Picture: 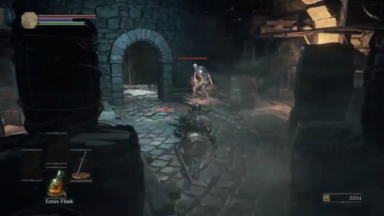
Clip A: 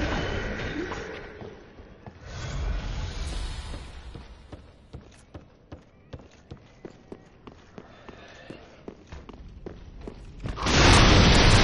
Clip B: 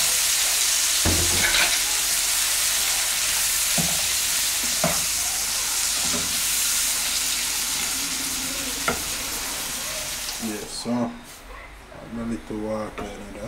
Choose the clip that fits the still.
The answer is A